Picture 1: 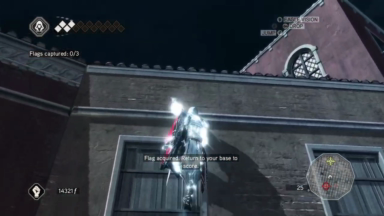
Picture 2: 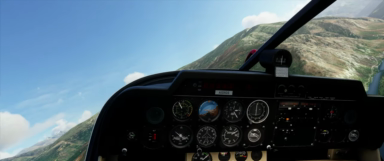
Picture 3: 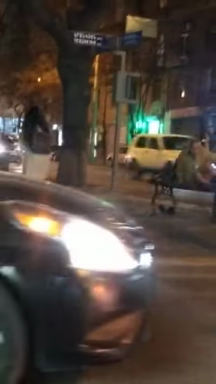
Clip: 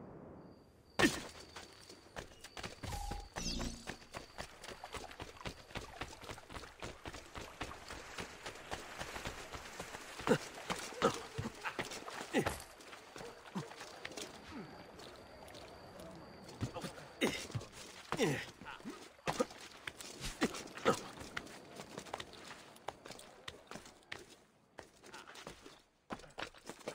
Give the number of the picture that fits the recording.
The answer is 1